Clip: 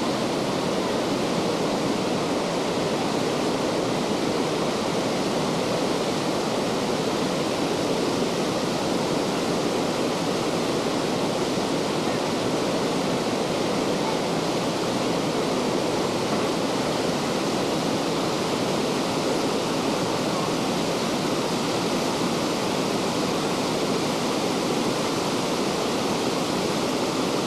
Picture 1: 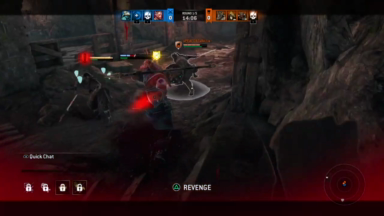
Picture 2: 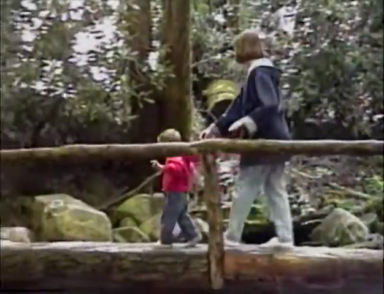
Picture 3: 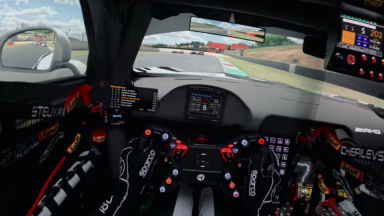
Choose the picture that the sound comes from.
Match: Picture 2